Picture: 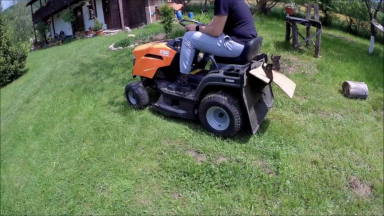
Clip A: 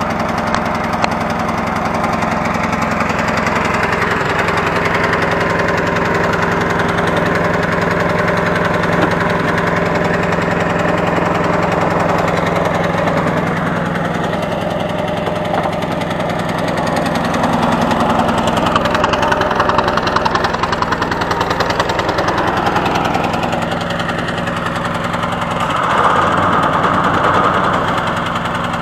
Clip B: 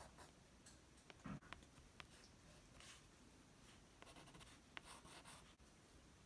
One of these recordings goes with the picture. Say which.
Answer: A